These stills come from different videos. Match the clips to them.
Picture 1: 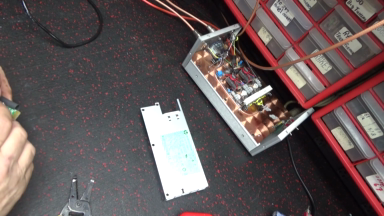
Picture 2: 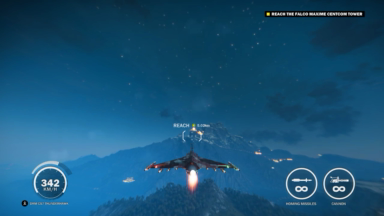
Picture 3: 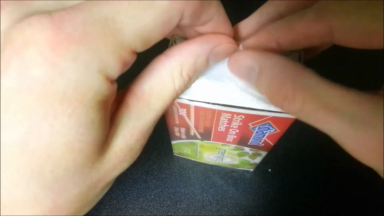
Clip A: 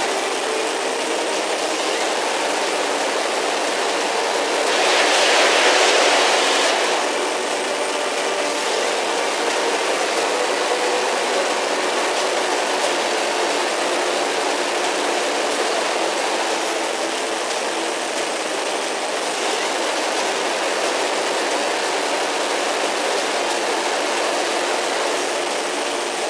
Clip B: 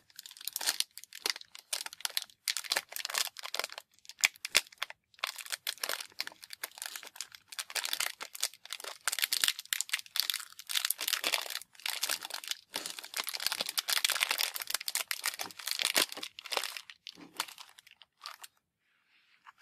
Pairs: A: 2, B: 3